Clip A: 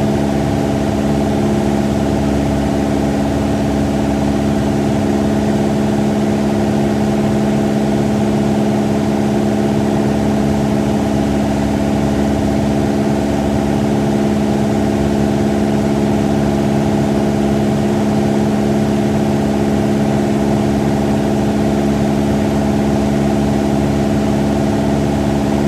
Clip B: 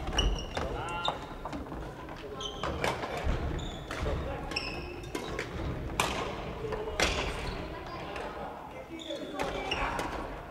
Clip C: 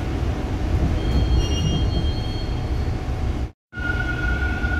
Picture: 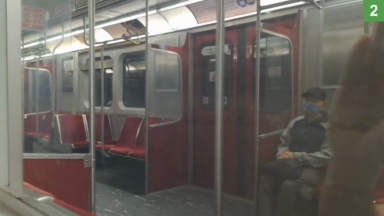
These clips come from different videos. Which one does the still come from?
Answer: C